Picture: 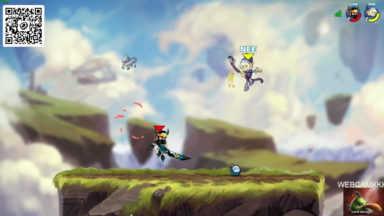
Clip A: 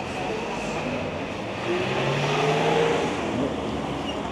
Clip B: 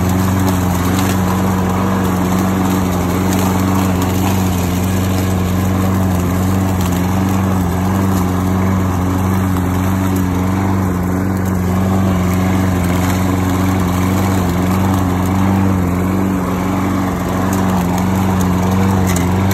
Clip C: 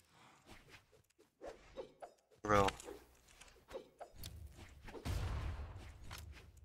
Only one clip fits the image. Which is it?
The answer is C